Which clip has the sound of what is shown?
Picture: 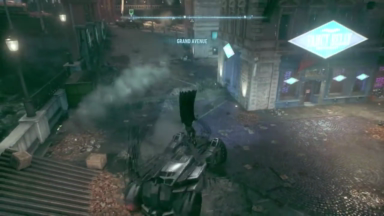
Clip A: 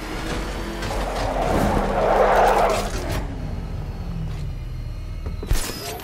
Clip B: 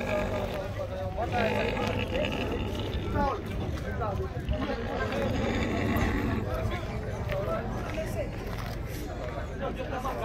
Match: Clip A